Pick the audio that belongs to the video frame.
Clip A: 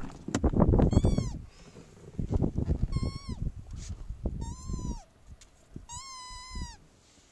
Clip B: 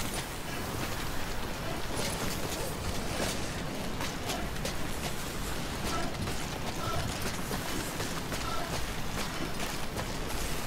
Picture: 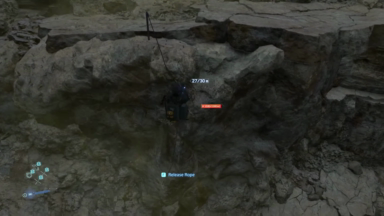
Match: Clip B